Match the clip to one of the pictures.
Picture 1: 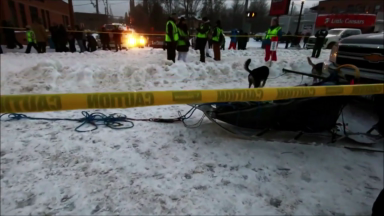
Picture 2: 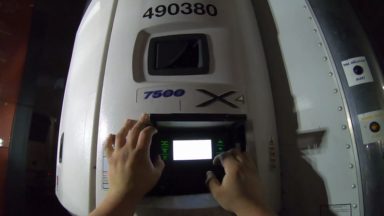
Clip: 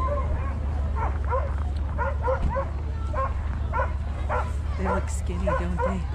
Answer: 1